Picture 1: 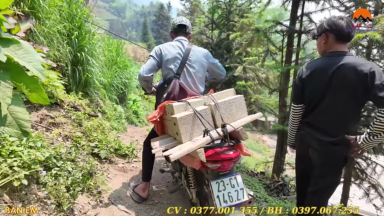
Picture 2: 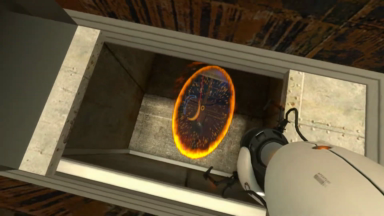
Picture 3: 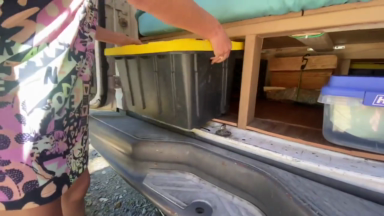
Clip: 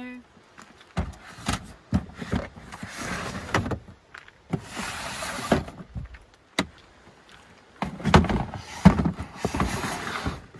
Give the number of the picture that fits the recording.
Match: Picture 3